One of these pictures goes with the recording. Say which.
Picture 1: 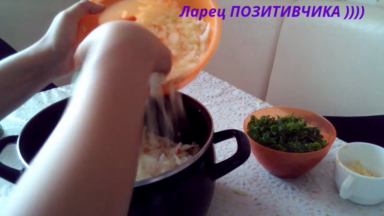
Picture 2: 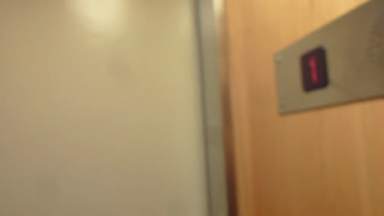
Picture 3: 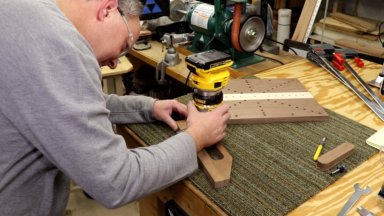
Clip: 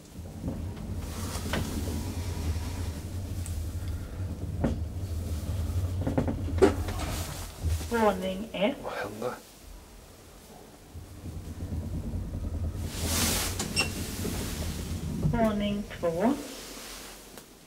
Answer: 2